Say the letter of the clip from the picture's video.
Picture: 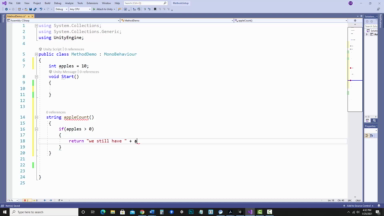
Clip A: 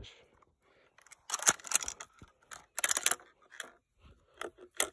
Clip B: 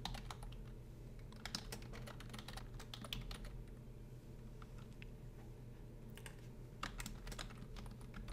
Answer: B